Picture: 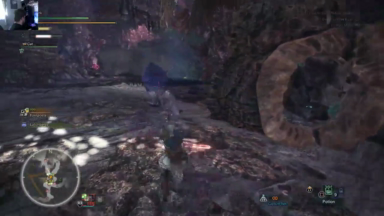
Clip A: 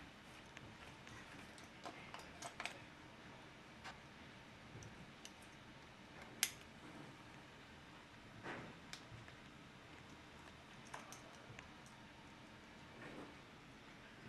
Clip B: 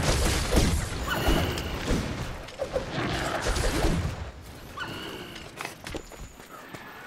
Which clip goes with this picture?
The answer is B